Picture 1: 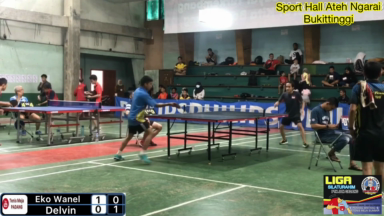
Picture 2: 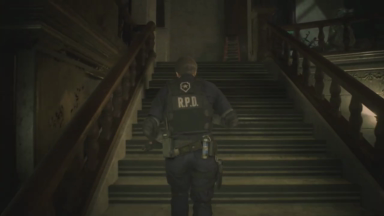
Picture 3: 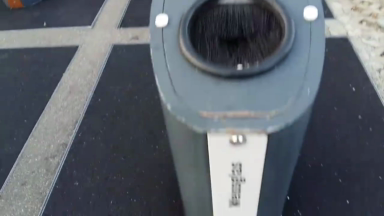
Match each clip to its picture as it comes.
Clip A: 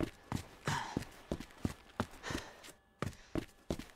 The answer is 2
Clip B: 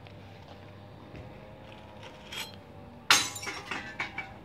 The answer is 3